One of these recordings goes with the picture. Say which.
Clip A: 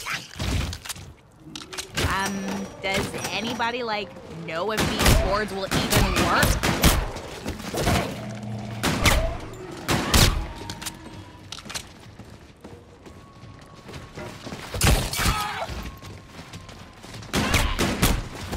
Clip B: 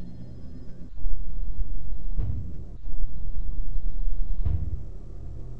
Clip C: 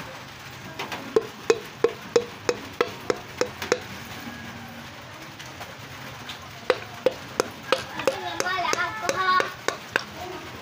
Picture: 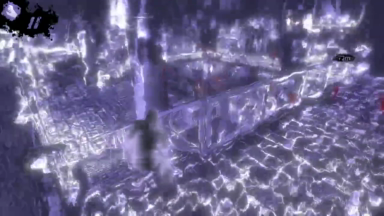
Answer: B